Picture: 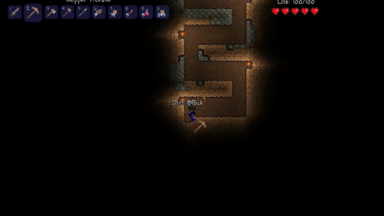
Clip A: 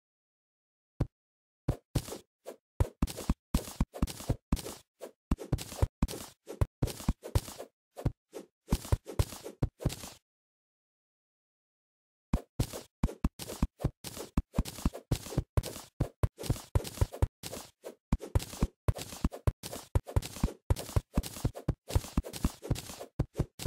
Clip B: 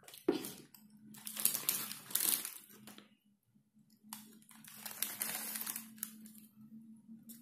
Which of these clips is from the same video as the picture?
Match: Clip A